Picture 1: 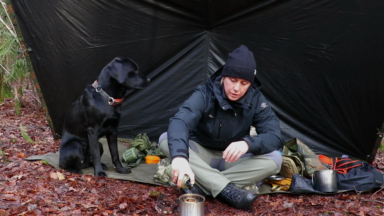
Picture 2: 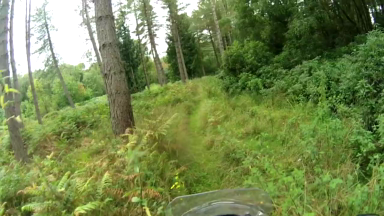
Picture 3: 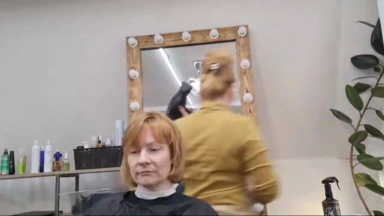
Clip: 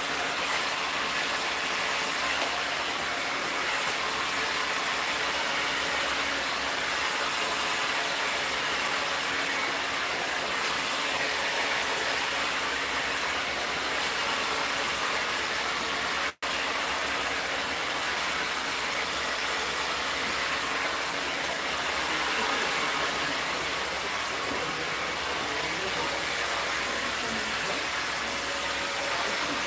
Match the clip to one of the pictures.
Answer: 3